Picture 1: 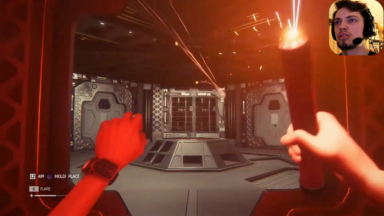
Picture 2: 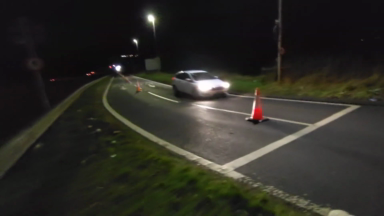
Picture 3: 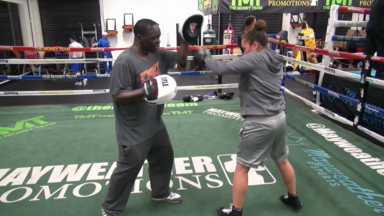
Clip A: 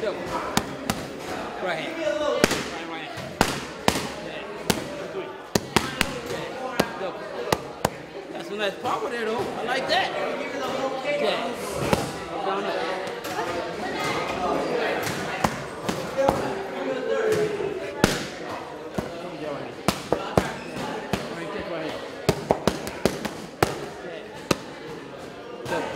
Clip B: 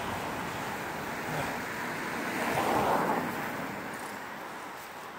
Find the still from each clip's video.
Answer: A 3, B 2